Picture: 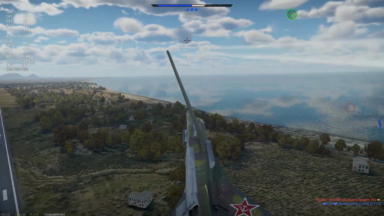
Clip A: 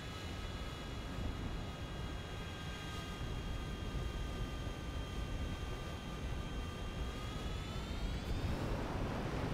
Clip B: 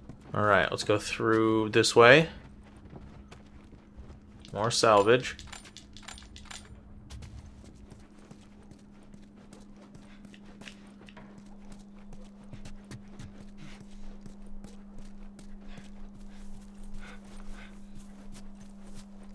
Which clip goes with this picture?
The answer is A